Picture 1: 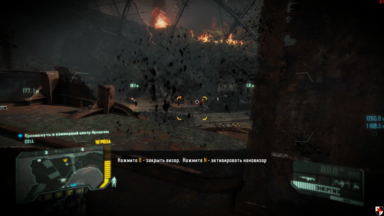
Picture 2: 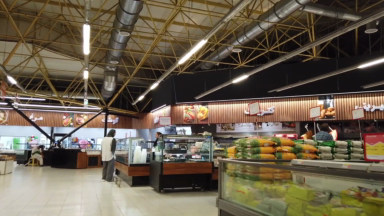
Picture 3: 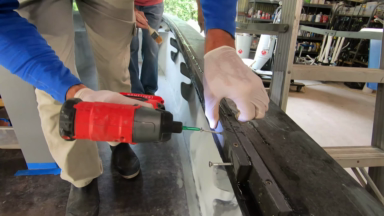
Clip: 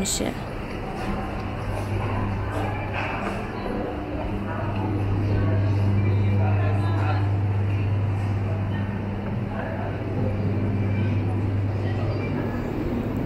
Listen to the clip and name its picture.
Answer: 2